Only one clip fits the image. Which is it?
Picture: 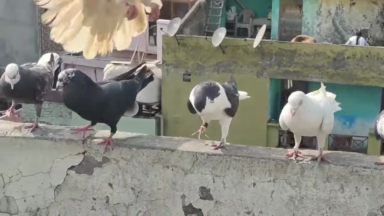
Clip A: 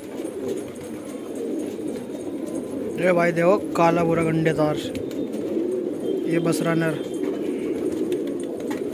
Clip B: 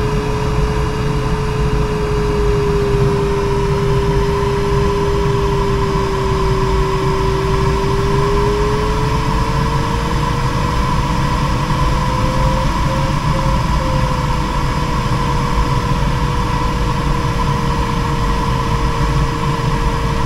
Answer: A